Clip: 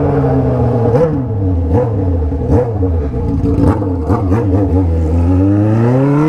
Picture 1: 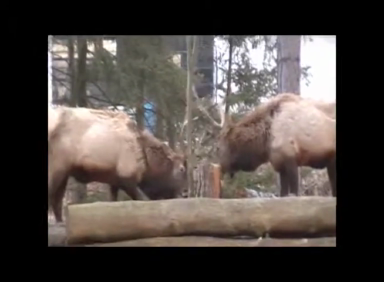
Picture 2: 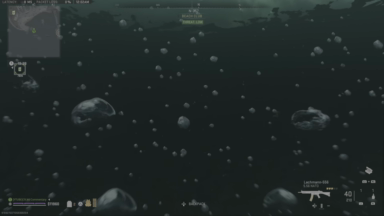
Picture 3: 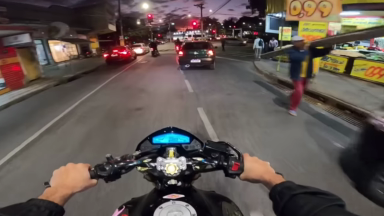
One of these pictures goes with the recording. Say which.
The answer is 3